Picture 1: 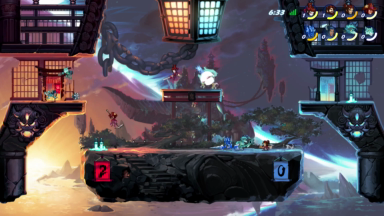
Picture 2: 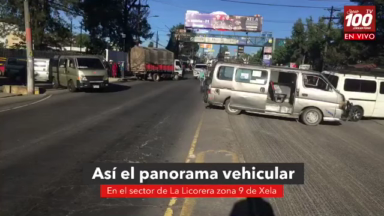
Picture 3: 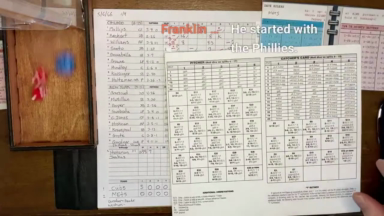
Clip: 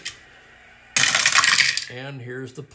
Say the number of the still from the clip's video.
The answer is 3